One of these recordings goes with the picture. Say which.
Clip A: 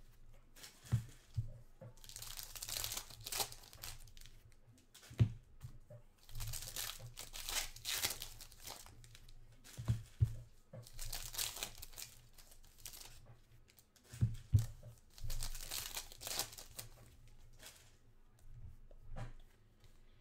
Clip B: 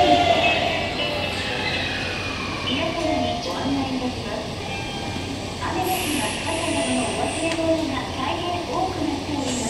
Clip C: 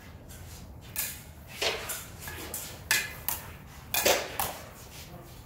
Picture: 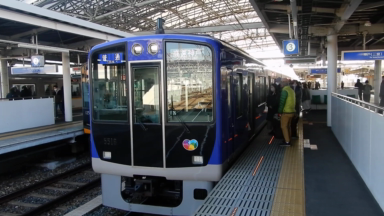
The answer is B